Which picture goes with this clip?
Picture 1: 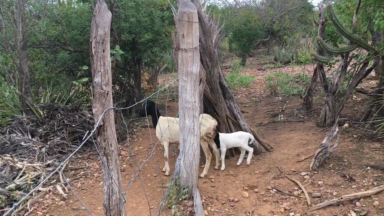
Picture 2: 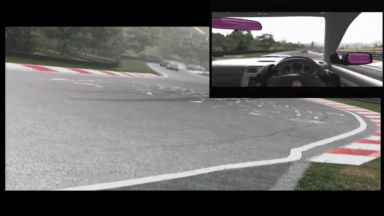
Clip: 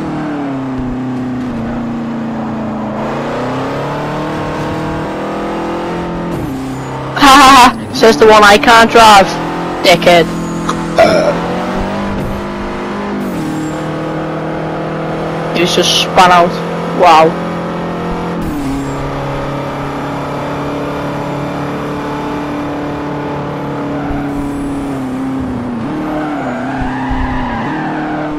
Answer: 2